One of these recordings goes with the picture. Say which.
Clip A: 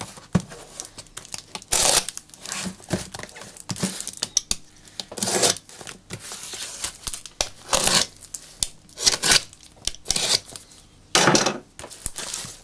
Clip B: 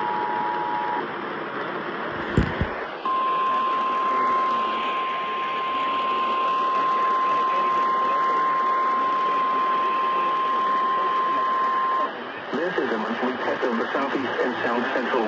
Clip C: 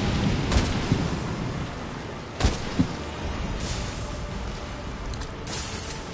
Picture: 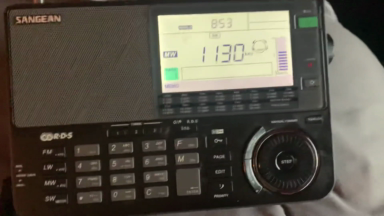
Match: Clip B